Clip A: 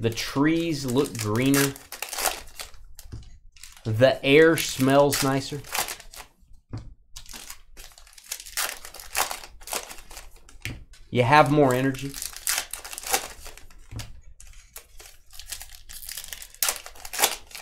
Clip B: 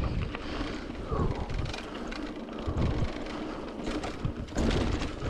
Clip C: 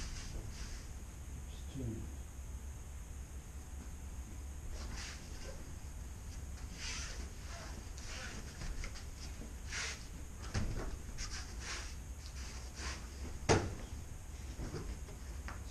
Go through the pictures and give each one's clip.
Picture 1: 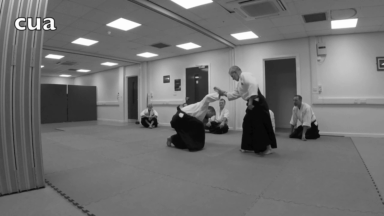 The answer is C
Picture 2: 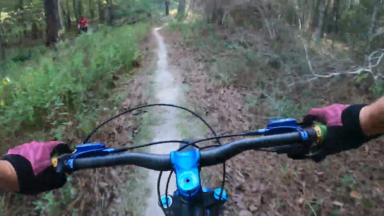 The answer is B